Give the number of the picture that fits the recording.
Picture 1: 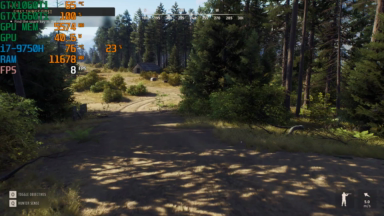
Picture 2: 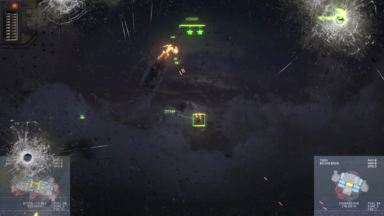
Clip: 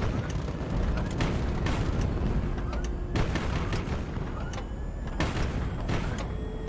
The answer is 2